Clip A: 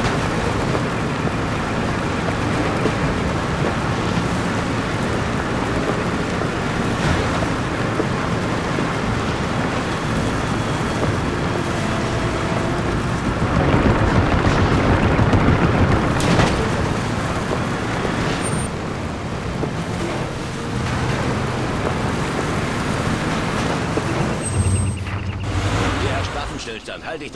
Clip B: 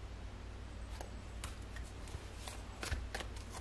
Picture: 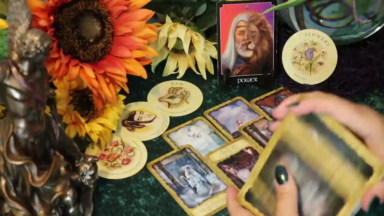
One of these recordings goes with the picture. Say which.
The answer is B